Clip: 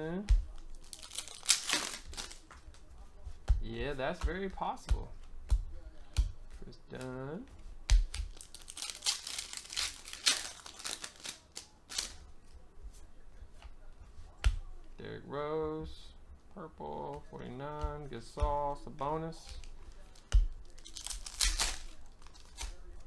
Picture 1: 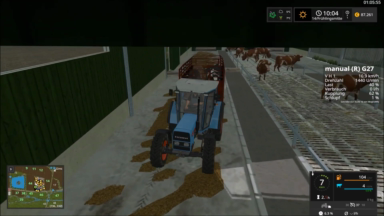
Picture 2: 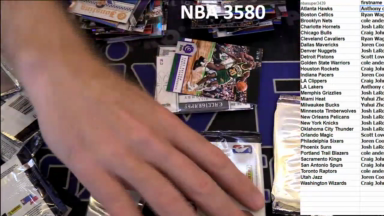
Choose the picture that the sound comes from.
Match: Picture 2